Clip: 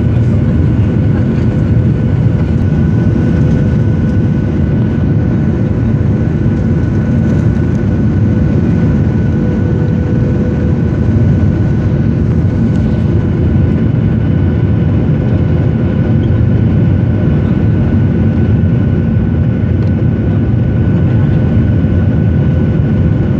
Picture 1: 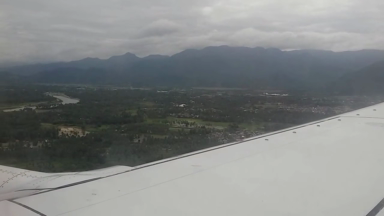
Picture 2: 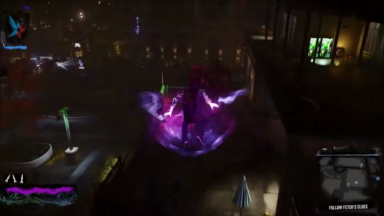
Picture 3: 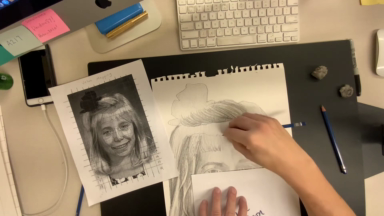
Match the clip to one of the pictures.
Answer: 1